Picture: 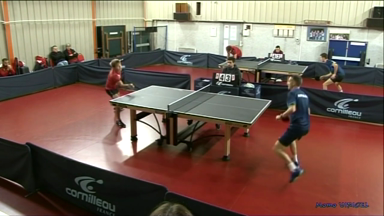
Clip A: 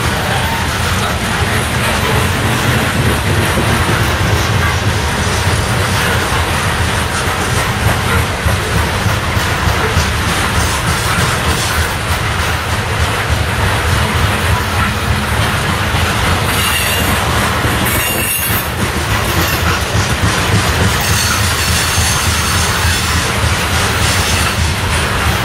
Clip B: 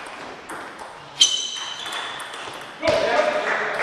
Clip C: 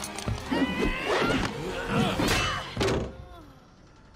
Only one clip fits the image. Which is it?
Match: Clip B